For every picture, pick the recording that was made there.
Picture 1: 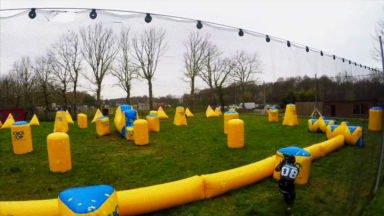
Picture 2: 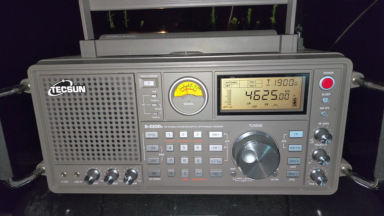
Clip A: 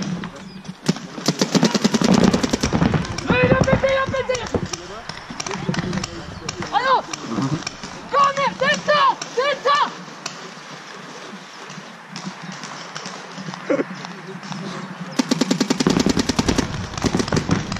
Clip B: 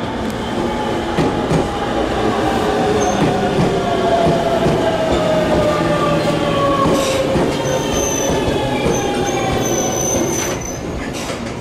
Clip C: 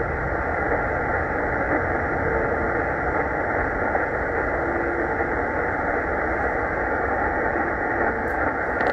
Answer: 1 A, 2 C